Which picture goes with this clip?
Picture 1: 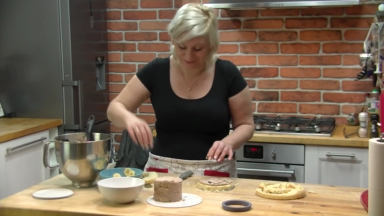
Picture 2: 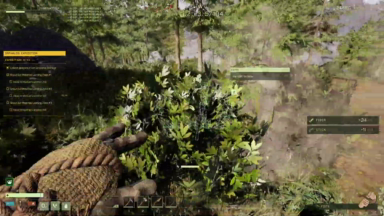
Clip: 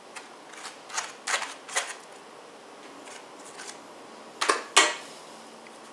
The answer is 1